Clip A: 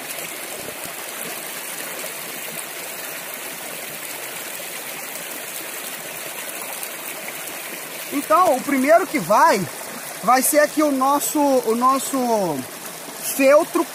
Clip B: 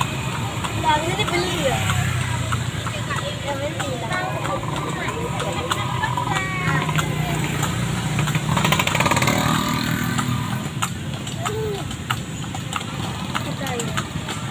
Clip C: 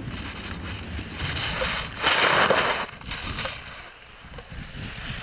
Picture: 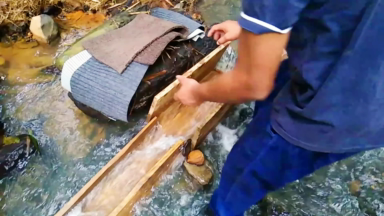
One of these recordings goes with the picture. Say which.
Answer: A